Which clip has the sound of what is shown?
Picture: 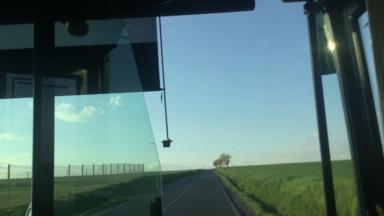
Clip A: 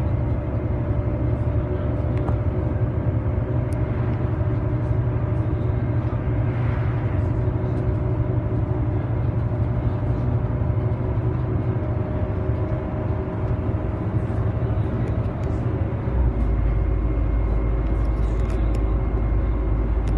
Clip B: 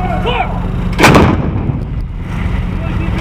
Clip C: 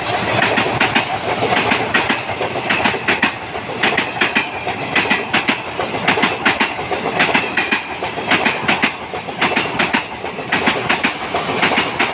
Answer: A